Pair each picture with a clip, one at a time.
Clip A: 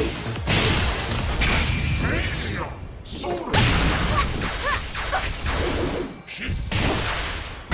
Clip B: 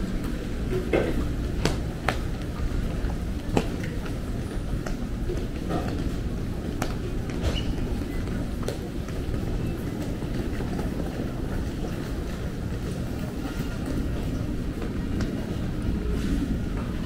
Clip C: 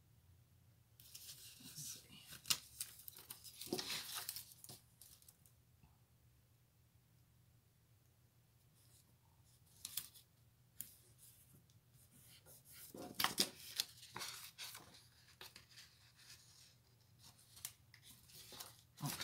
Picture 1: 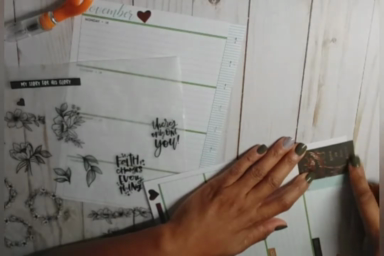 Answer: C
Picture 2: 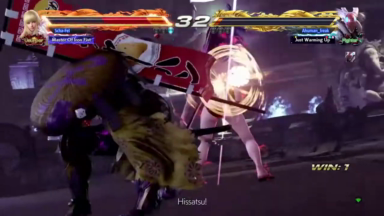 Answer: A